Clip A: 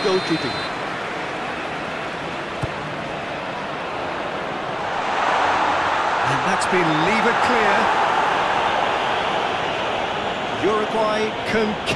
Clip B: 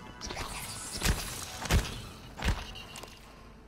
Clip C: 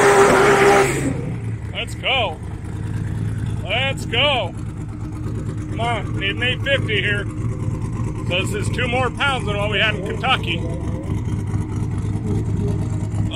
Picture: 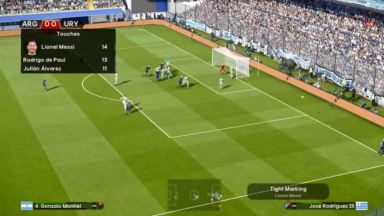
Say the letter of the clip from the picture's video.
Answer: A